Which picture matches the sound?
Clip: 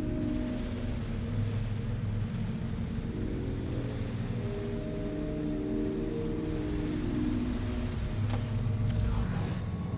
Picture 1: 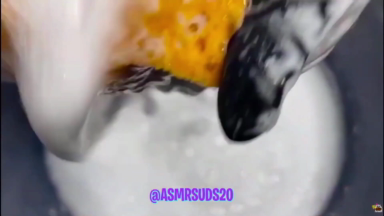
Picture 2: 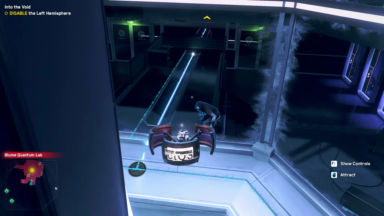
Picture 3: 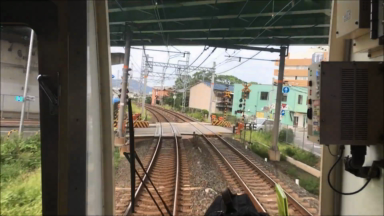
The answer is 2